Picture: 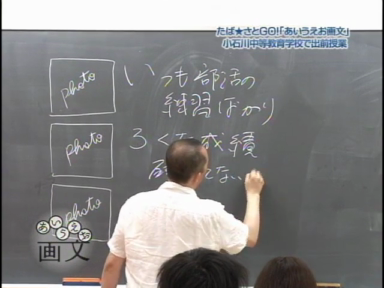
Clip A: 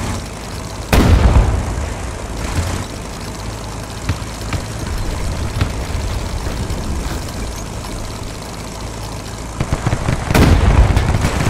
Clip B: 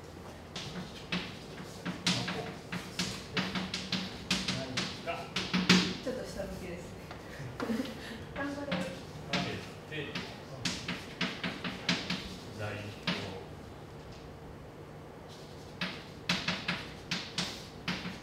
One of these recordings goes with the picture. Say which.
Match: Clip B